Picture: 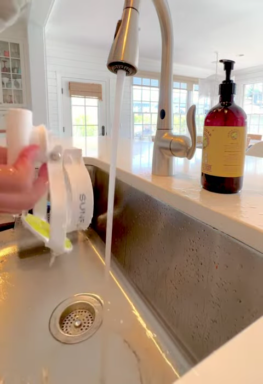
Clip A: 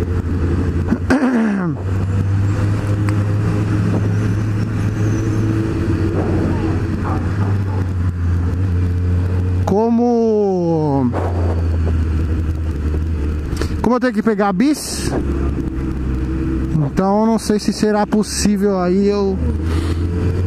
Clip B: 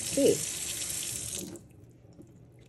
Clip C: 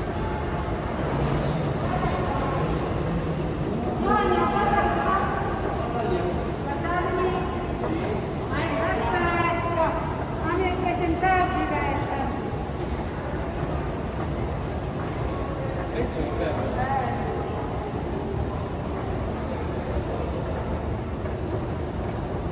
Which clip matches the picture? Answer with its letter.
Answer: B